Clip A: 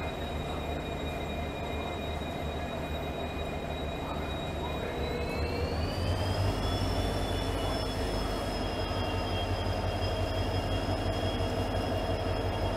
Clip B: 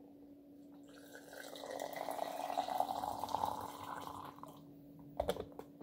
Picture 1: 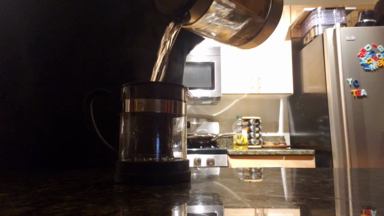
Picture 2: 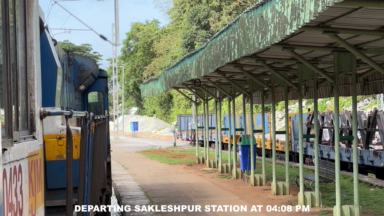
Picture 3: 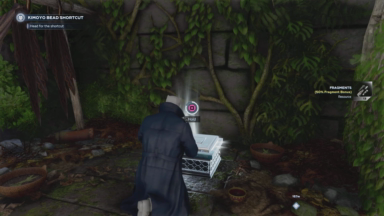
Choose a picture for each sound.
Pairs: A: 2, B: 1